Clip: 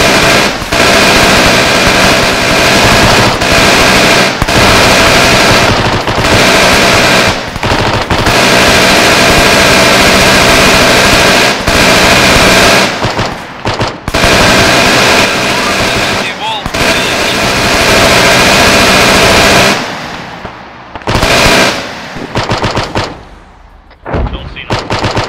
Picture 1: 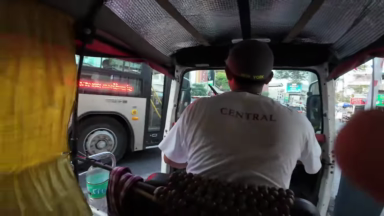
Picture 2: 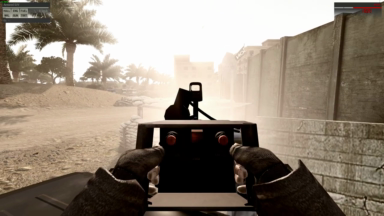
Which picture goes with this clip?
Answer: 2